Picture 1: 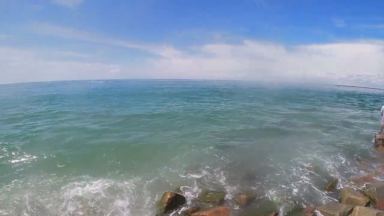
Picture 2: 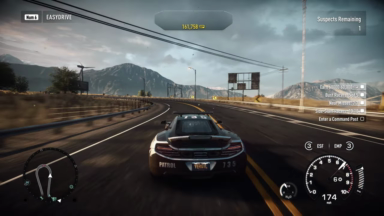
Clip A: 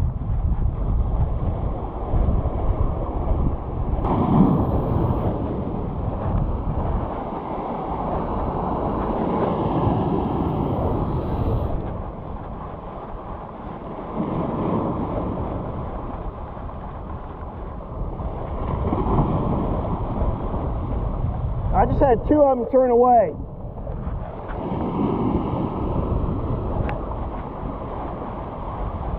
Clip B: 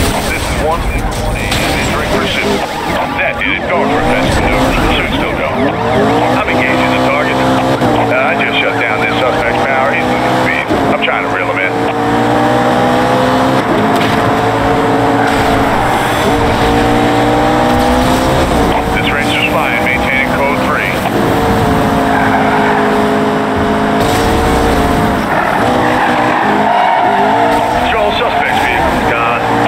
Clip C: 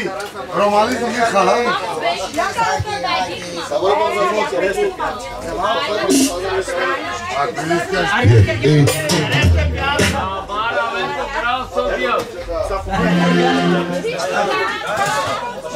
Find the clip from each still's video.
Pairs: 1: A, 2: B